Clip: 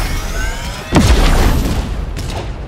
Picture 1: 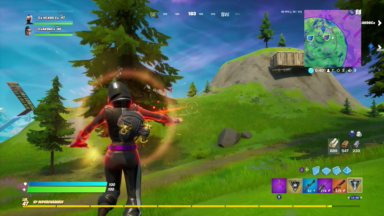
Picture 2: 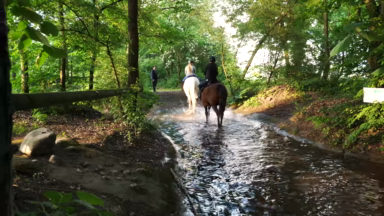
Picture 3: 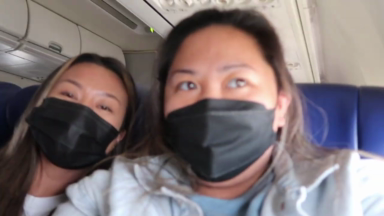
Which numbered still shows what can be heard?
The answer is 1